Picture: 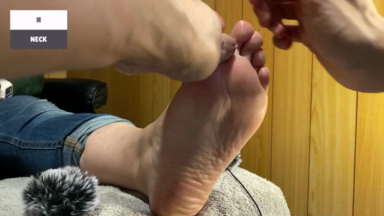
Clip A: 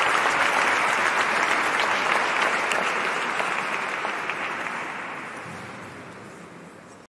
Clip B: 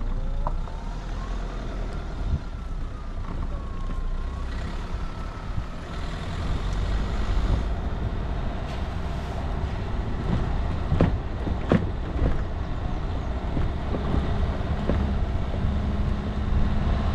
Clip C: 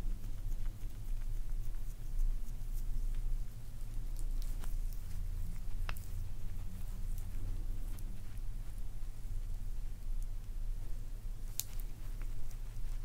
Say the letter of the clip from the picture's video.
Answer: C